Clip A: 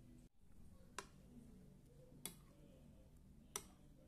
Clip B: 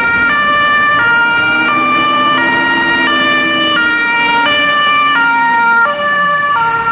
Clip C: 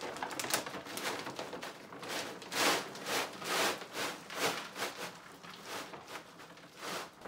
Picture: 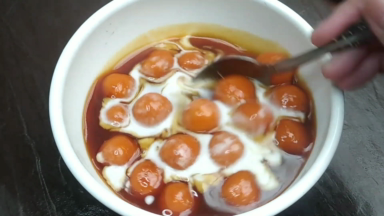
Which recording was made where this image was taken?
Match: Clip A